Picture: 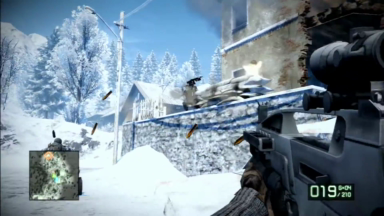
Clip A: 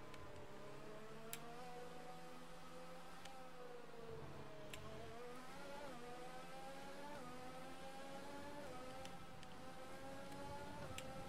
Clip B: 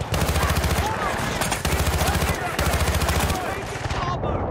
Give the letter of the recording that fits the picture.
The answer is B